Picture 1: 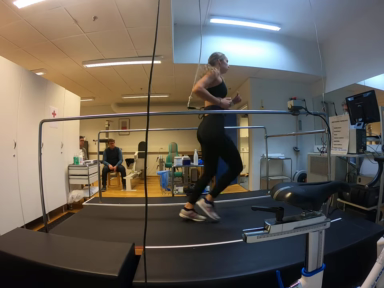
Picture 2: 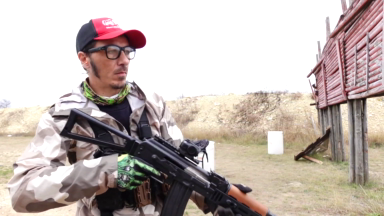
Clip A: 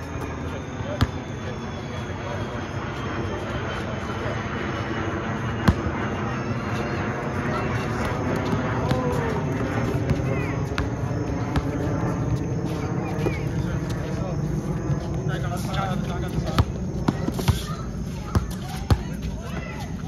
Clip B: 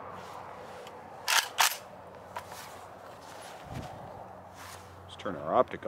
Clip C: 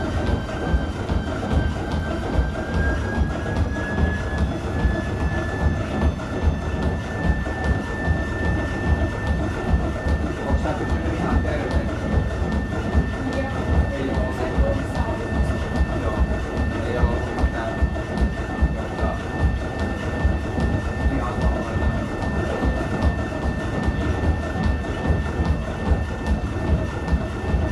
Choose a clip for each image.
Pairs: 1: C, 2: B